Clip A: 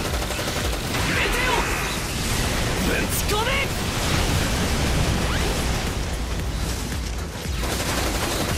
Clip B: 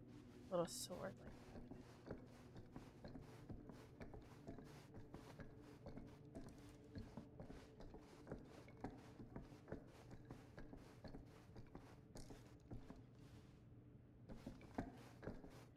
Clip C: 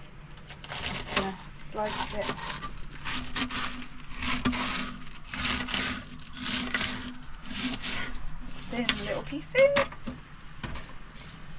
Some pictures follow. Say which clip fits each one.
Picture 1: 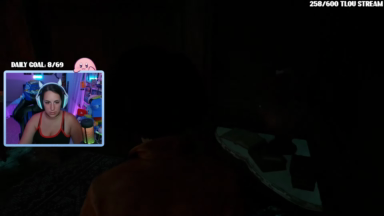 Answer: B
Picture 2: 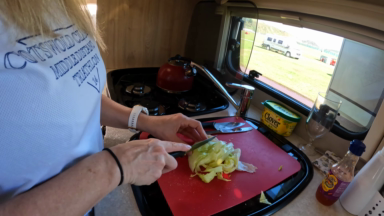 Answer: C